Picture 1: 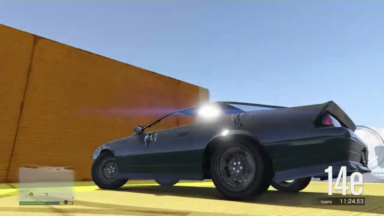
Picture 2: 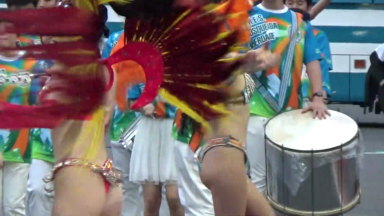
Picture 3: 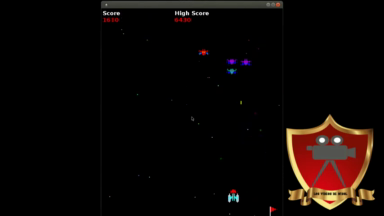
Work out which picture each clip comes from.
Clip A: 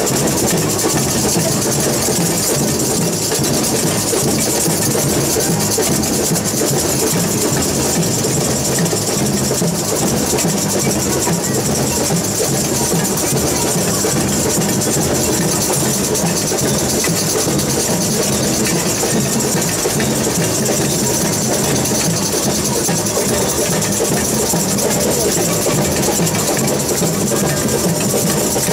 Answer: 2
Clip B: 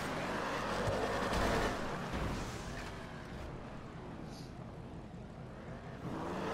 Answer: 1